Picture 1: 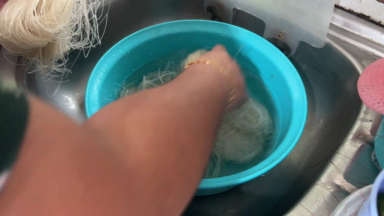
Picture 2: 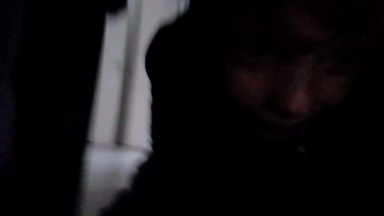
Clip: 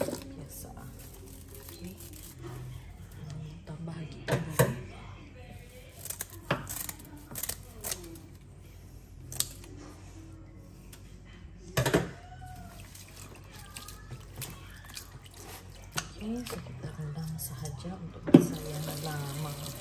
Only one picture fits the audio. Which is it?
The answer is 1